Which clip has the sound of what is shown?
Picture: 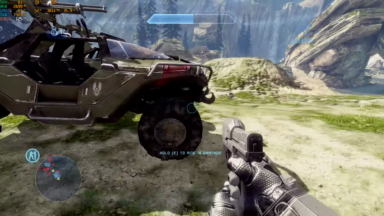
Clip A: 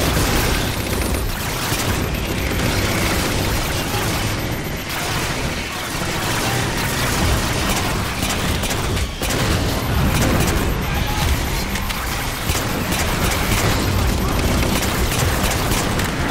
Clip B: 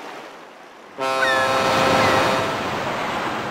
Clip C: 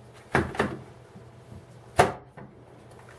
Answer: A